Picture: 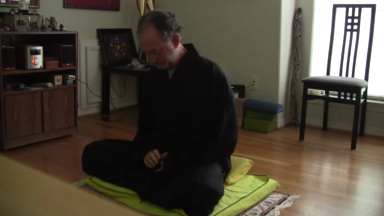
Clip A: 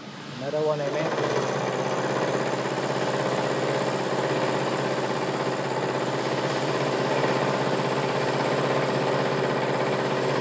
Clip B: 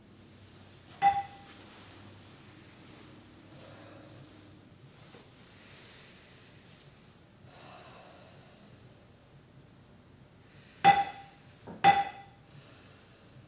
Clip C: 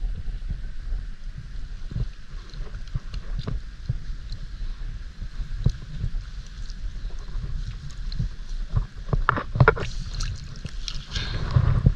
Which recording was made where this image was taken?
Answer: B